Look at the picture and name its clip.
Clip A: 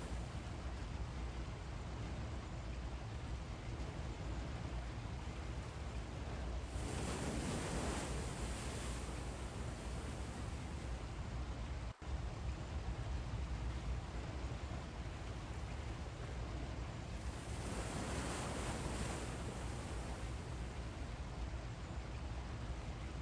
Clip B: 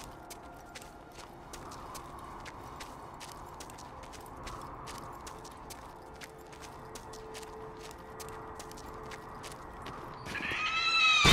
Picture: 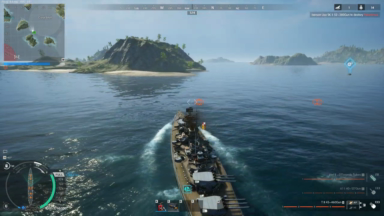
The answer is A